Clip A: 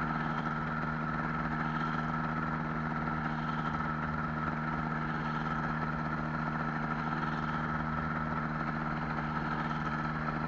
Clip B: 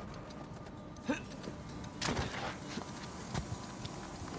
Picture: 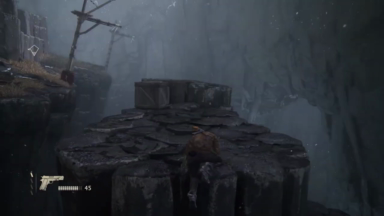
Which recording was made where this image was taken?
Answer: B